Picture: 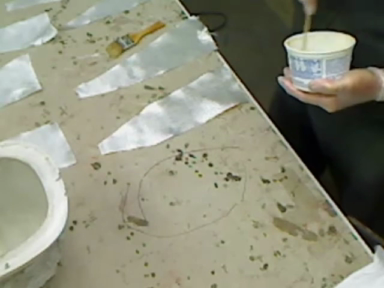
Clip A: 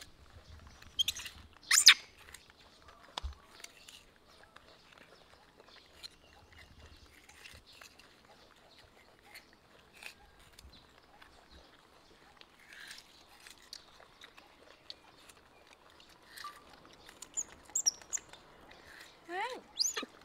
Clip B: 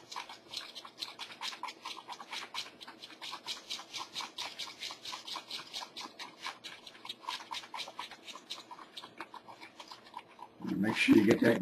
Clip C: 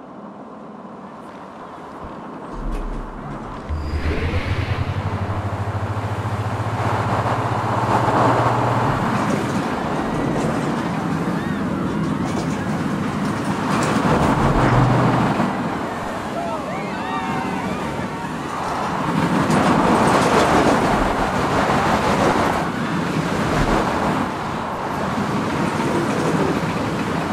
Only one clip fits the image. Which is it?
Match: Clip B